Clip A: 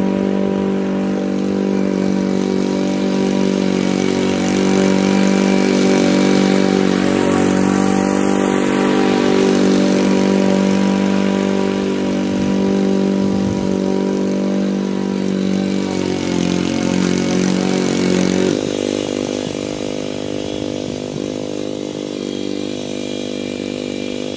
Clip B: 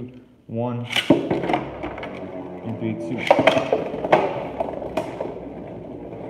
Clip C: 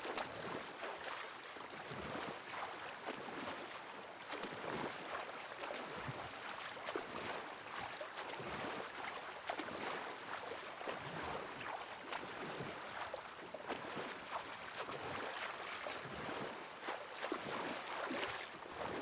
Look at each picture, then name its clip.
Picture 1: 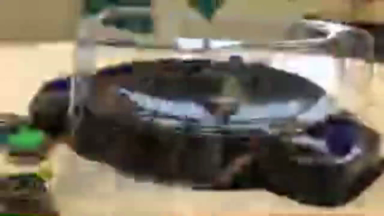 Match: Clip B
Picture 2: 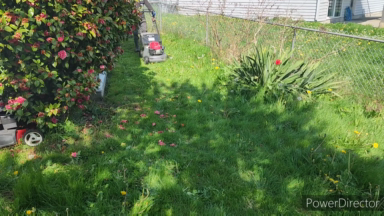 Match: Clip A